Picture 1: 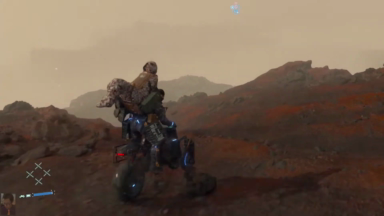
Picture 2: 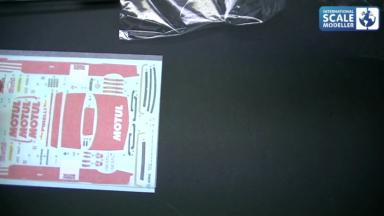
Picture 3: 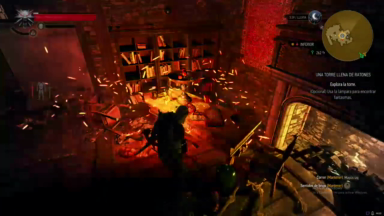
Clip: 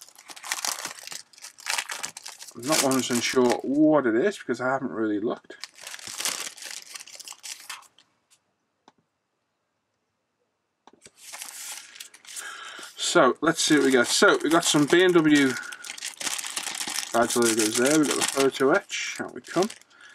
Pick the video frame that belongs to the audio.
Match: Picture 2